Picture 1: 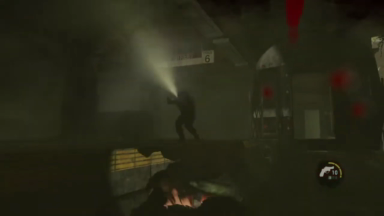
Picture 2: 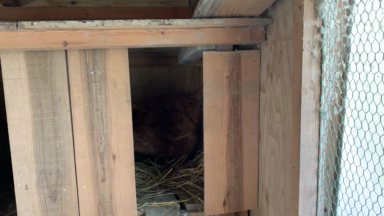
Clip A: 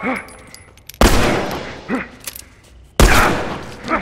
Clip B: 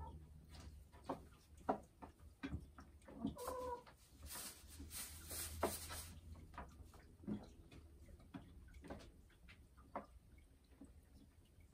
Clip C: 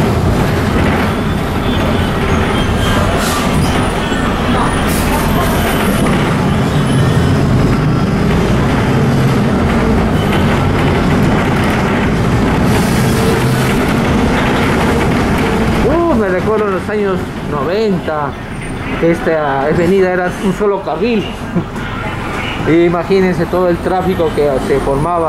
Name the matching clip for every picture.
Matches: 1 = A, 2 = B